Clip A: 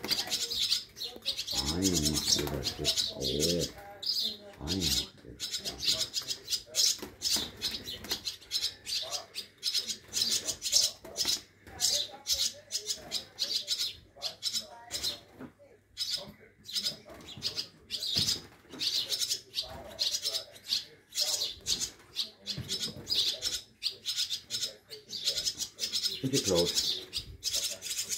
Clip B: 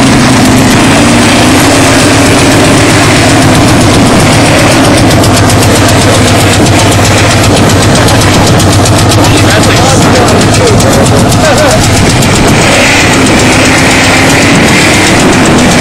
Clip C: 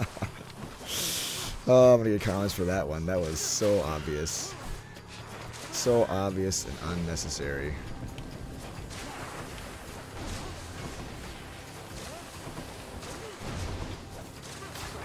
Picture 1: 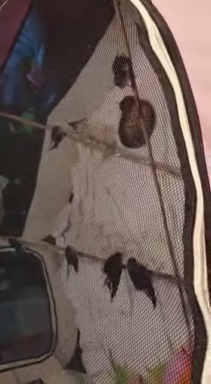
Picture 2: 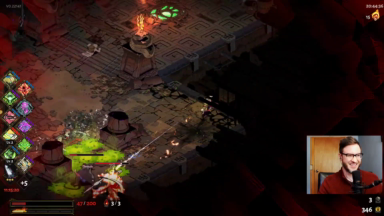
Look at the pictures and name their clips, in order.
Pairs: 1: A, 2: C